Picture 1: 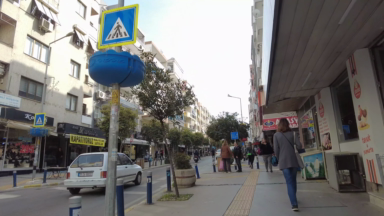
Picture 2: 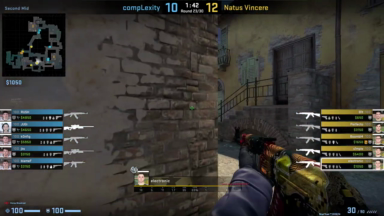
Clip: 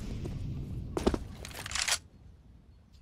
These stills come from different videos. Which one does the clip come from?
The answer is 2